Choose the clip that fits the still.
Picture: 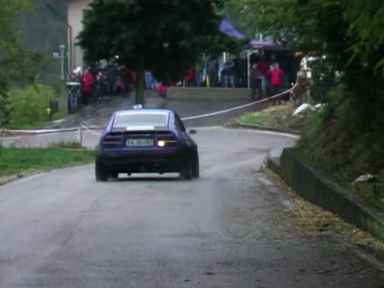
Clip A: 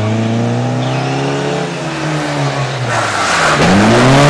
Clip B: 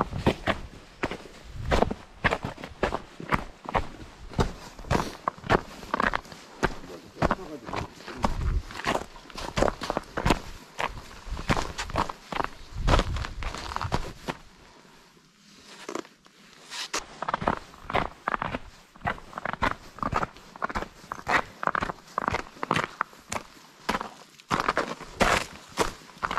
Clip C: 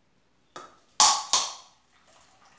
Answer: A